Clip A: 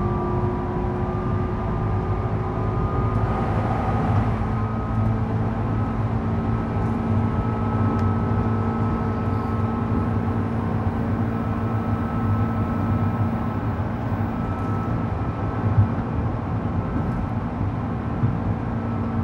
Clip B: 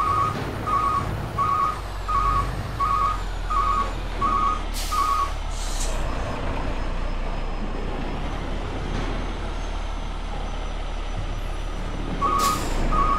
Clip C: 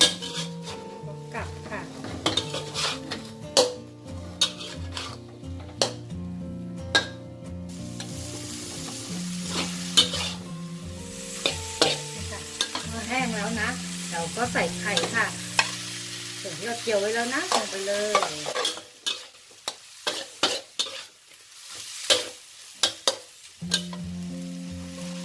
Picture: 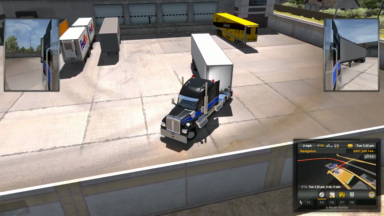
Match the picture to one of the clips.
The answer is B